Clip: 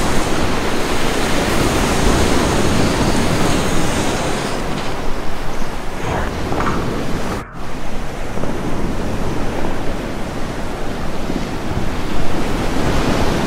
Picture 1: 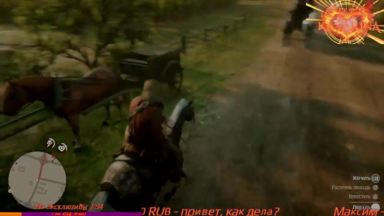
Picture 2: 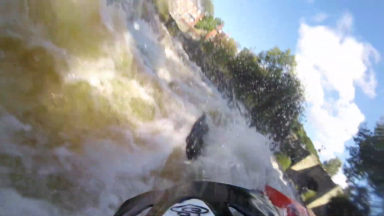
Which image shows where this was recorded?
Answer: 2